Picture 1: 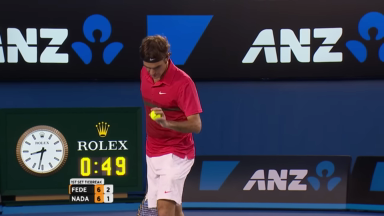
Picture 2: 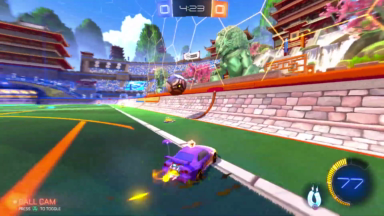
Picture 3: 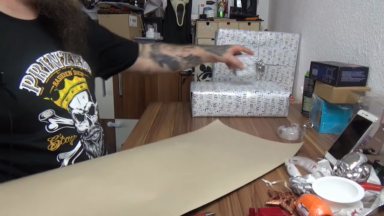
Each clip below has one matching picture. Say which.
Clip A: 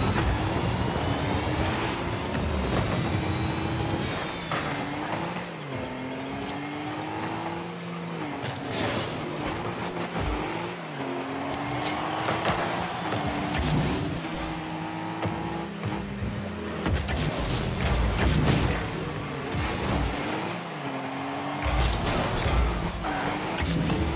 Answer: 2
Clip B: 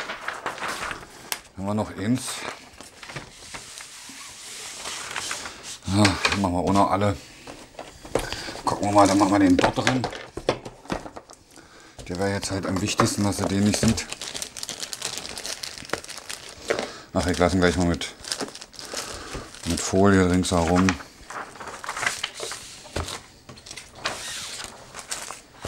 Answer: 3